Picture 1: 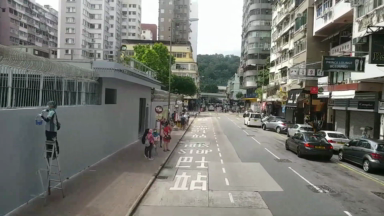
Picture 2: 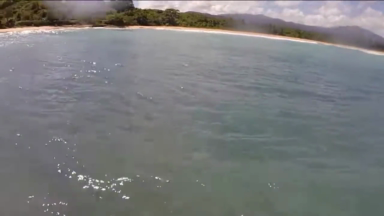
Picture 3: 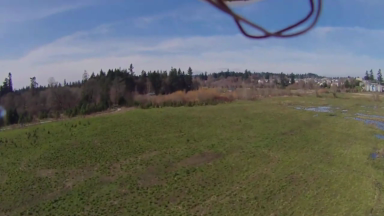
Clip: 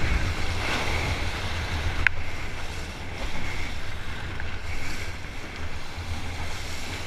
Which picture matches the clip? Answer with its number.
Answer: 2